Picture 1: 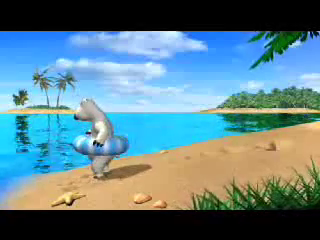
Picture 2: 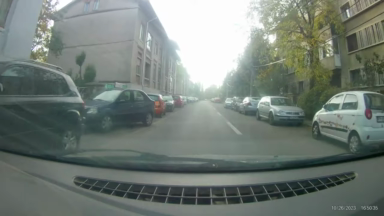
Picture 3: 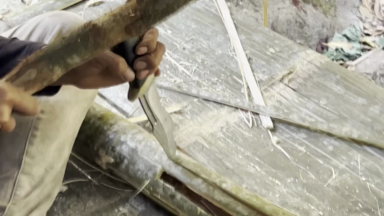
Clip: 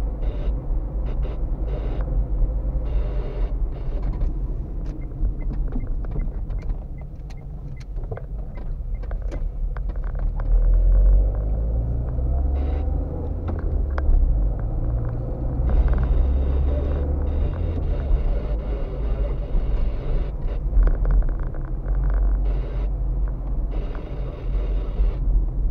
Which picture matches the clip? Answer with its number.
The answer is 2